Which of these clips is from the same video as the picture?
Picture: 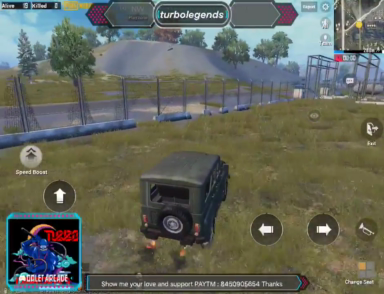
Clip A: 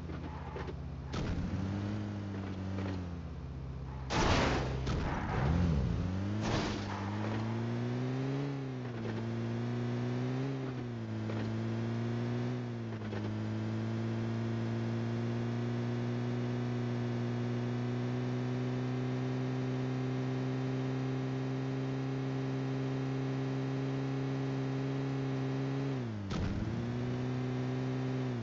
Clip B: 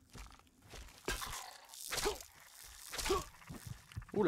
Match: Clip A